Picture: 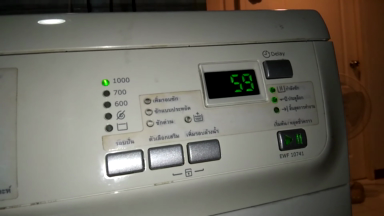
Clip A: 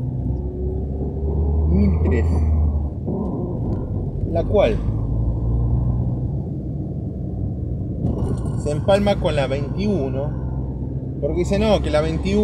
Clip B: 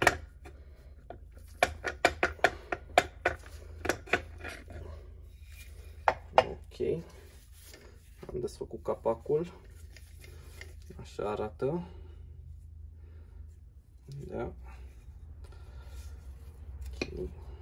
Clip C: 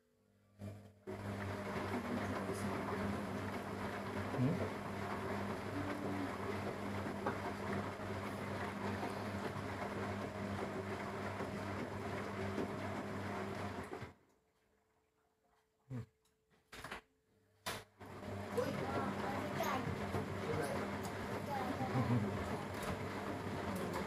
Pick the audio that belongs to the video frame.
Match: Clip C